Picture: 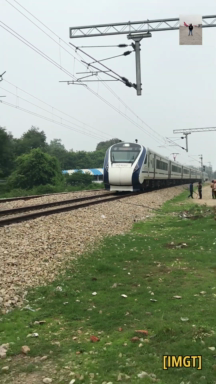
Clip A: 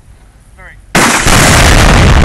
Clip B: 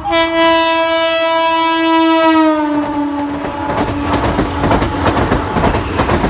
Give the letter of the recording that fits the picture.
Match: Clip B